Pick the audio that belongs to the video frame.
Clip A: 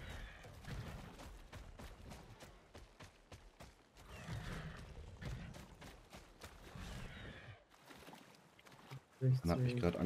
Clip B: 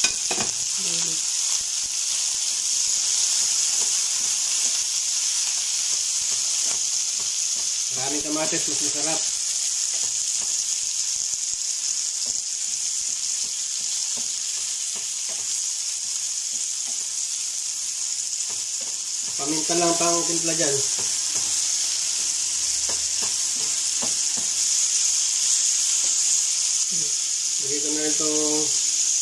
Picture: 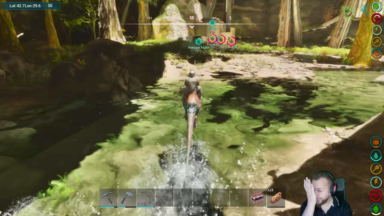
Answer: A